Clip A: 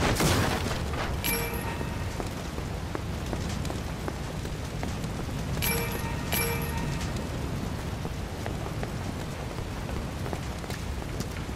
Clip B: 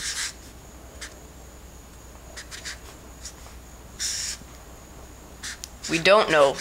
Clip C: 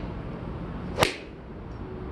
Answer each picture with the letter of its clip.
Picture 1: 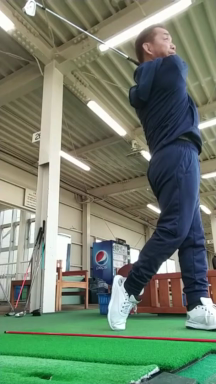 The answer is C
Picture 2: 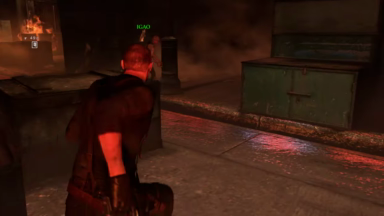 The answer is A